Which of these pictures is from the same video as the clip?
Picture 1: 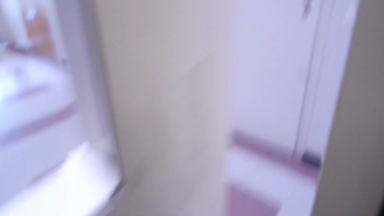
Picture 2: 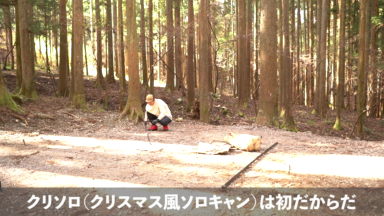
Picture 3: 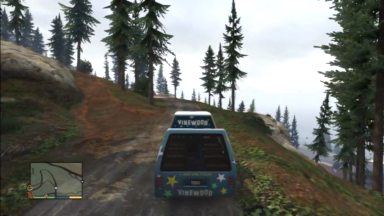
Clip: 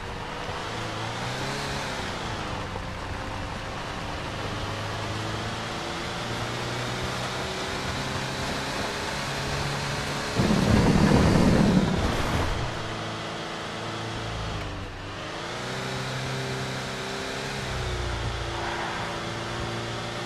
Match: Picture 3